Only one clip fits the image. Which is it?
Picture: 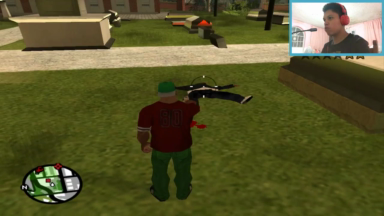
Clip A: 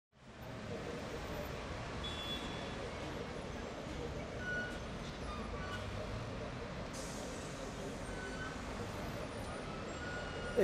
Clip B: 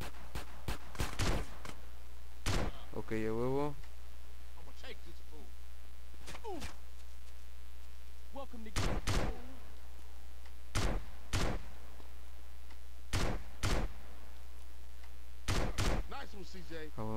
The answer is B